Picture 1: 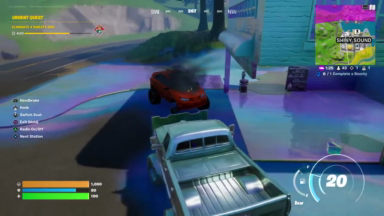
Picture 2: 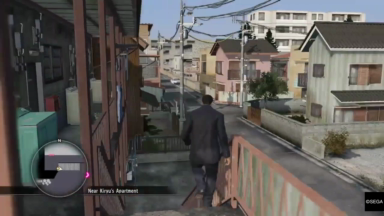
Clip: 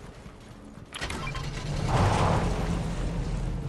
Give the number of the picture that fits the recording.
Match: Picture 1